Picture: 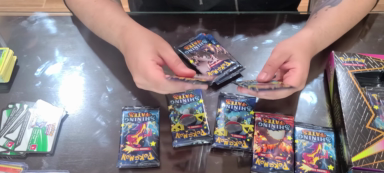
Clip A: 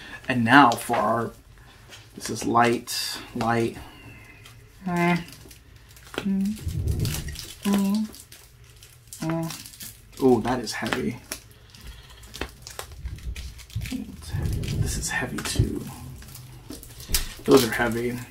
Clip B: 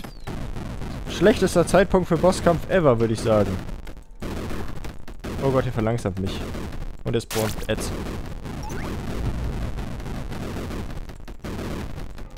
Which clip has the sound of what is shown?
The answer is A